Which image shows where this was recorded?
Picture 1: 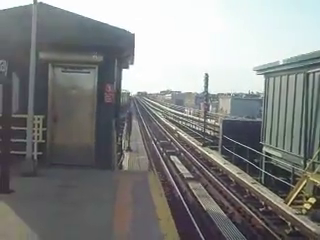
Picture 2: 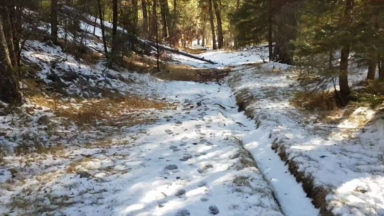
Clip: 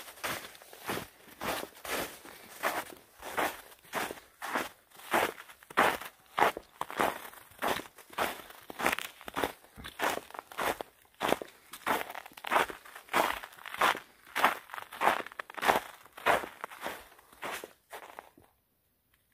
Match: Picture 2